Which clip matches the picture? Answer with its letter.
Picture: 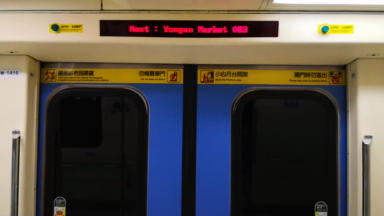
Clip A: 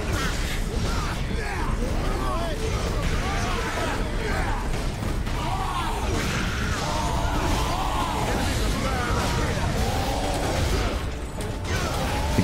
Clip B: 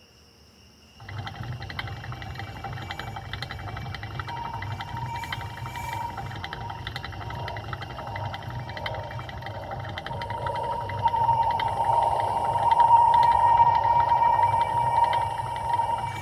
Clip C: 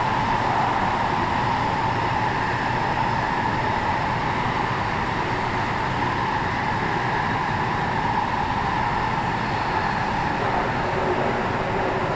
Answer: C